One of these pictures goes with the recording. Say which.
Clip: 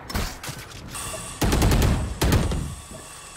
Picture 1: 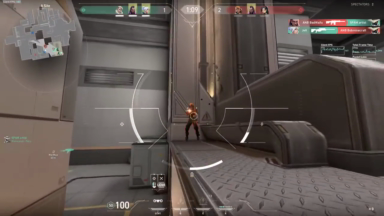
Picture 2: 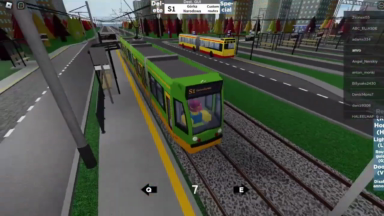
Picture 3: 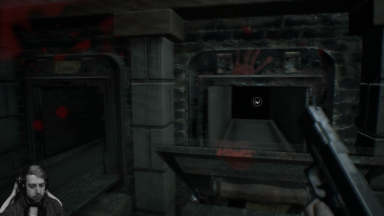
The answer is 1